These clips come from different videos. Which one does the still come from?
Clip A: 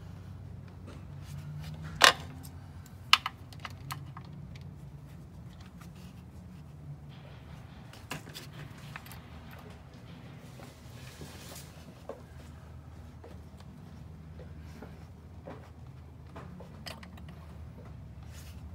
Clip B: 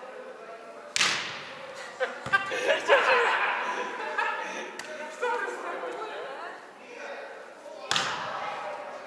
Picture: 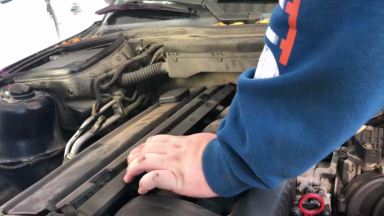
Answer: A